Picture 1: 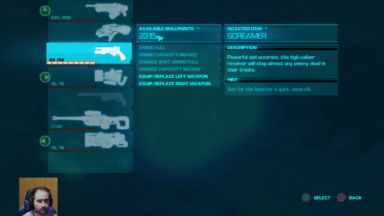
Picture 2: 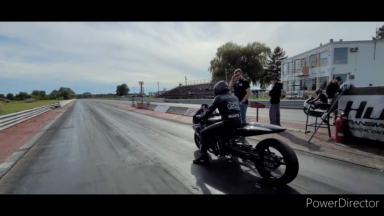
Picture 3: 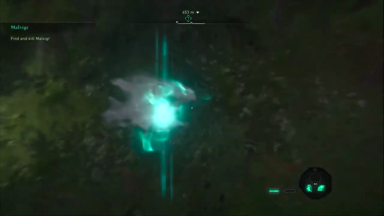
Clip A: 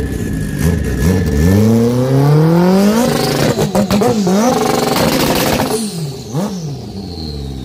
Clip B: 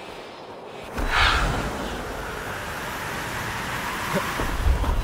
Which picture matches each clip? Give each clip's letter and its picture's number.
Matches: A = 2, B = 3